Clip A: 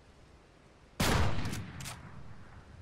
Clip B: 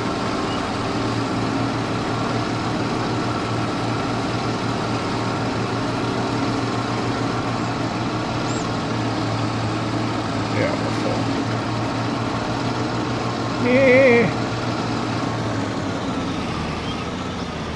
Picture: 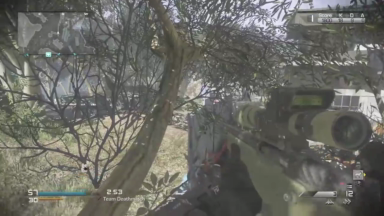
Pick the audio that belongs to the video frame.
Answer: A